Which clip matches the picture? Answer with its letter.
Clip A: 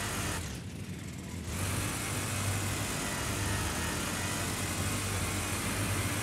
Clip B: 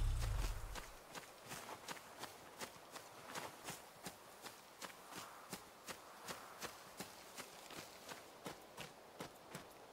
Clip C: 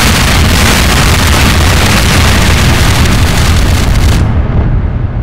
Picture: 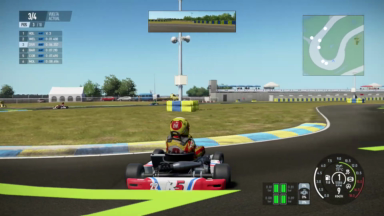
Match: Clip A